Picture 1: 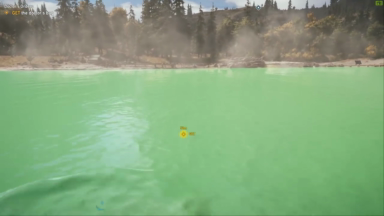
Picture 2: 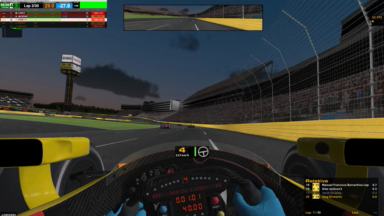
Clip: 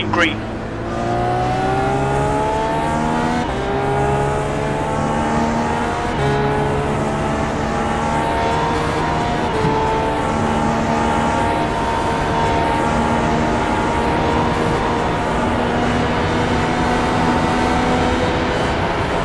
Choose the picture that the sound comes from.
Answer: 2